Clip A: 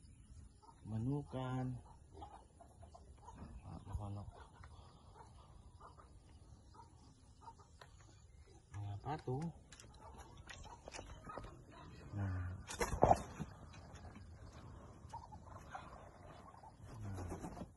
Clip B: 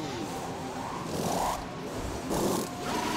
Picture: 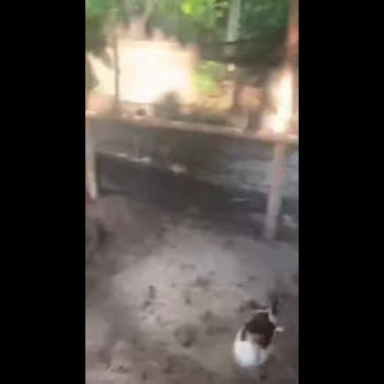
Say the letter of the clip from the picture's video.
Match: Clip A